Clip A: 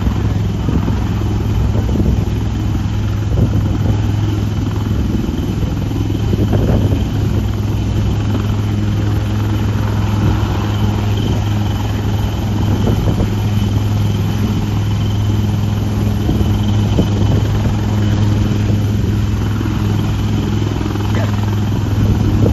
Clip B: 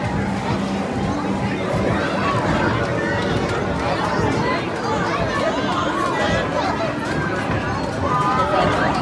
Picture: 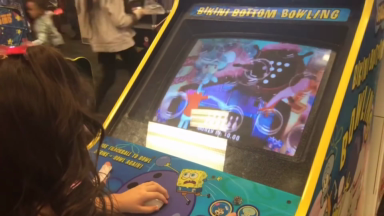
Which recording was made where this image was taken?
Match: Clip B